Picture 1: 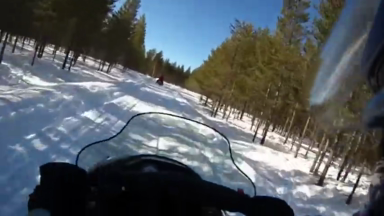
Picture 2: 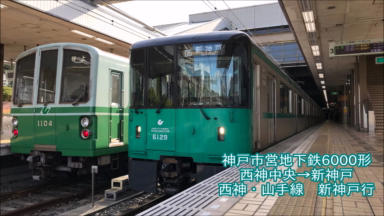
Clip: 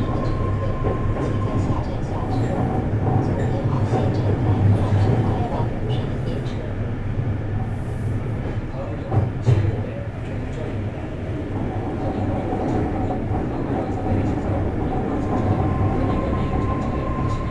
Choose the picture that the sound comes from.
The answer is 2